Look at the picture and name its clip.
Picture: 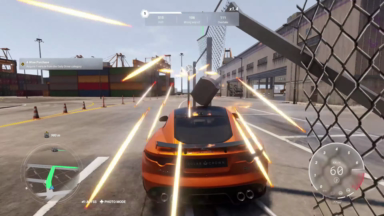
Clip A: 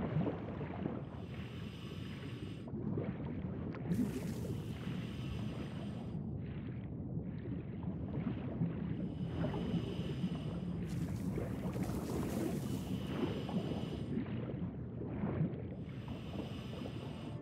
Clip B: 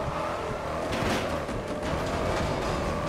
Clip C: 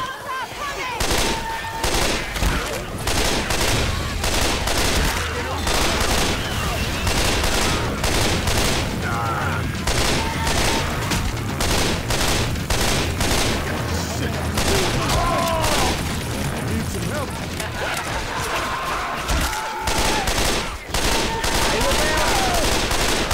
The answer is B